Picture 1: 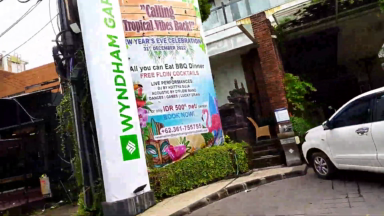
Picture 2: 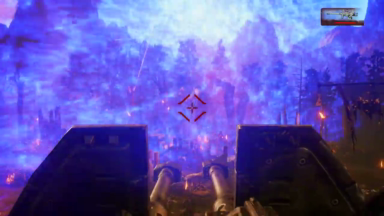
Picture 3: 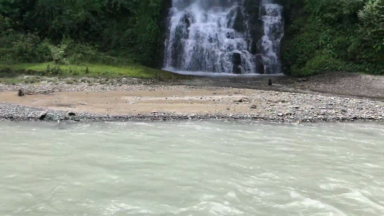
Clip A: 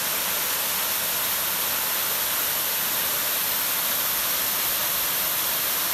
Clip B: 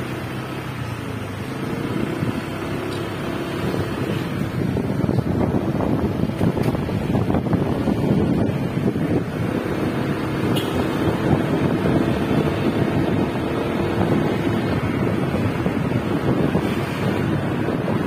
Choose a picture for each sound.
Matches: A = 3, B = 1